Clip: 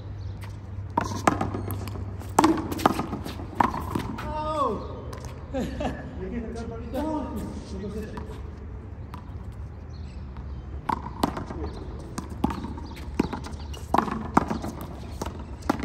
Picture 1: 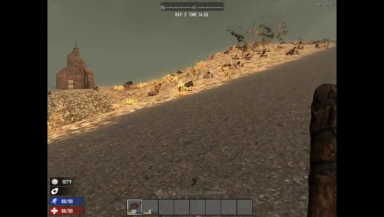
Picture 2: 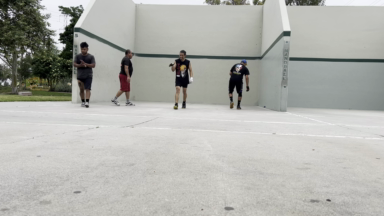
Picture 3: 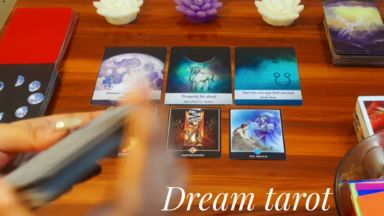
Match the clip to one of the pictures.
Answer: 2